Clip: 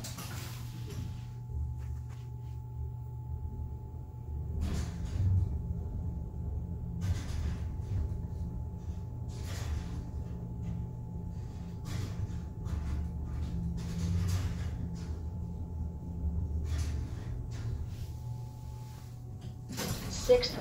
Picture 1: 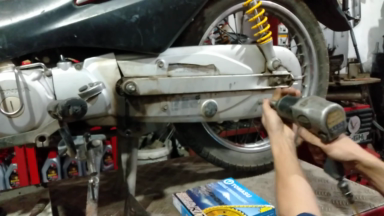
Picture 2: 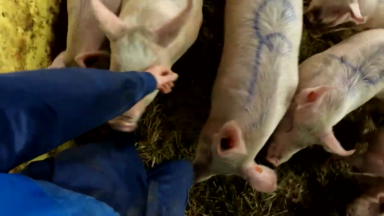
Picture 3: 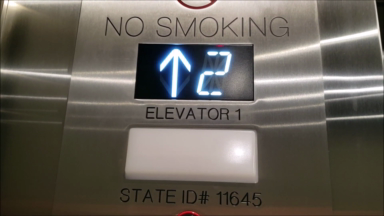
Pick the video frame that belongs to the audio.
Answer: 3